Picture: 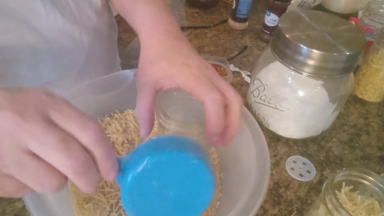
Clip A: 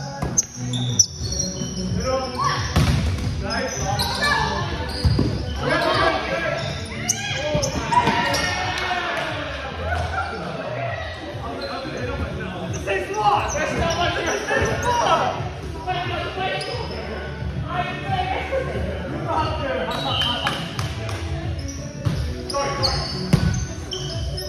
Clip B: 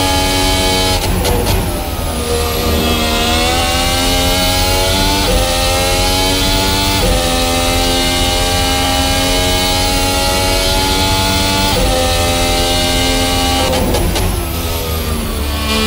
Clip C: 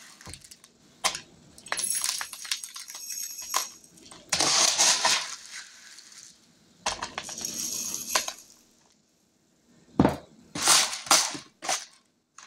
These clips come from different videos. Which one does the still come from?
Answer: C